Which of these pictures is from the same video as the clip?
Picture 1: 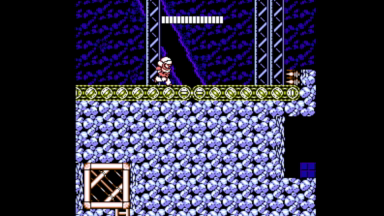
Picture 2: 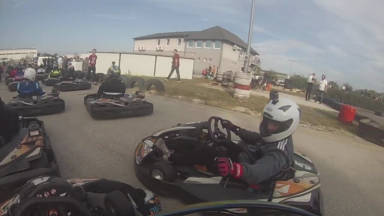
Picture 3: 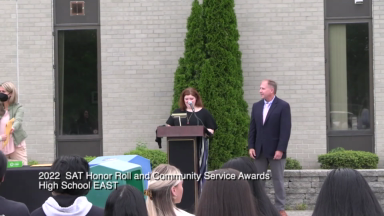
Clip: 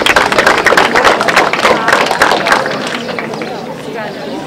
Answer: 3